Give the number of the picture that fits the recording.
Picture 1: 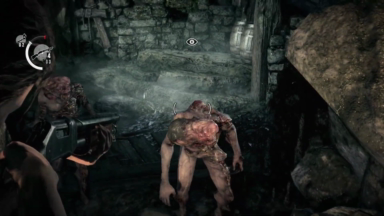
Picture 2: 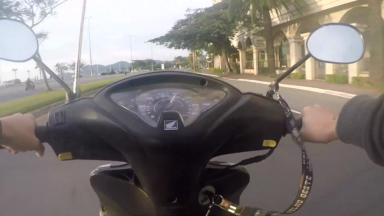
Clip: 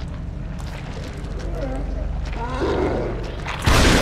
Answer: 1